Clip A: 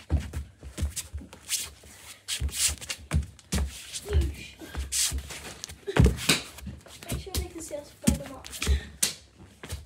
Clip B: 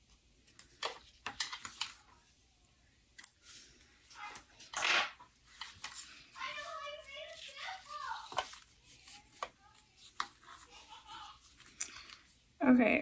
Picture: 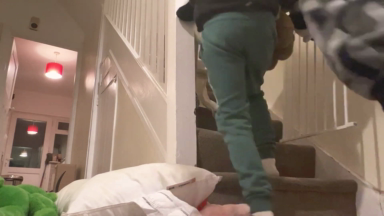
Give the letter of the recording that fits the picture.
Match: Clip A